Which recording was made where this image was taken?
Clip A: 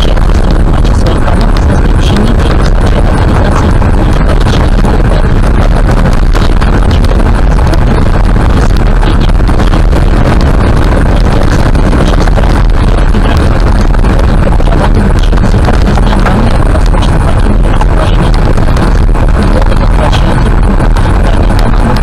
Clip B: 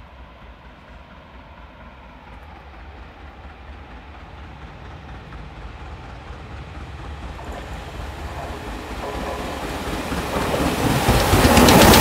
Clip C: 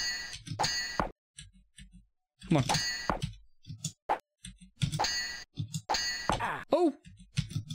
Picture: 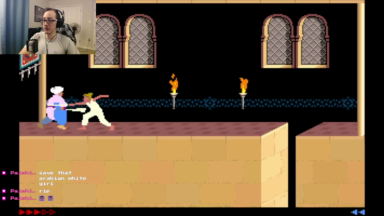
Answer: C